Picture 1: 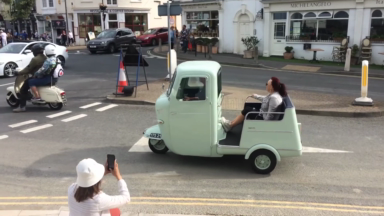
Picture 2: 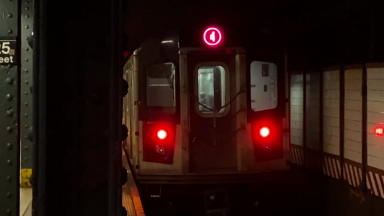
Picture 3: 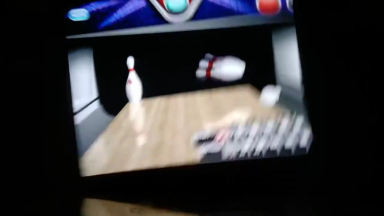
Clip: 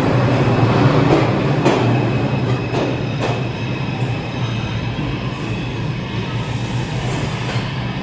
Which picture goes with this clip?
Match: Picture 2